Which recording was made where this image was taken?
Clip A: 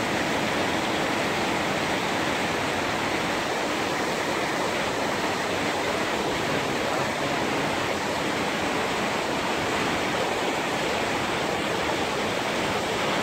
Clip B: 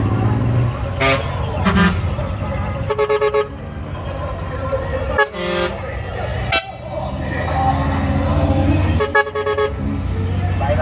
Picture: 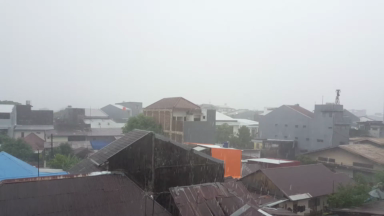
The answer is A